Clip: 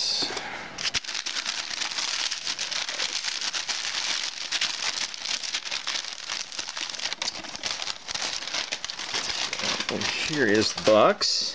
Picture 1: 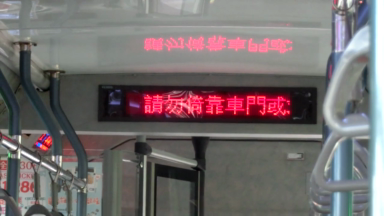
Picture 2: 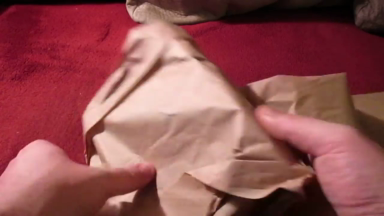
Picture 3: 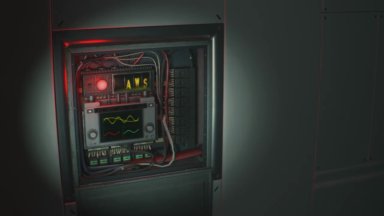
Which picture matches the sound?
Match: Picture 2